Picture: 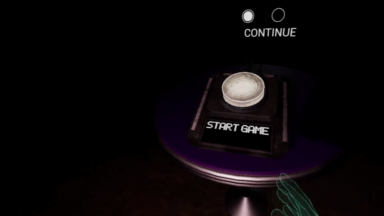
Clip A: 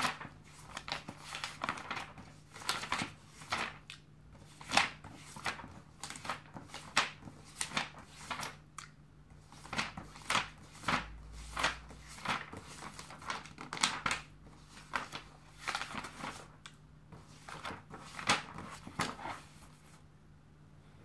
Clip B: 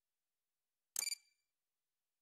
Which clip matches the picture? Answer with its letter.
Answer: B